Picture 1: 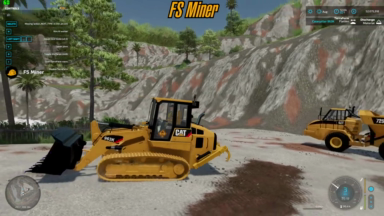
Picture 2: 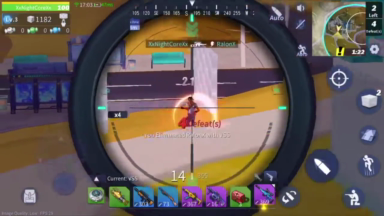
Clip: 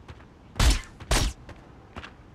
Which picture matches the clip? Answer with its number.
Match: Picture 2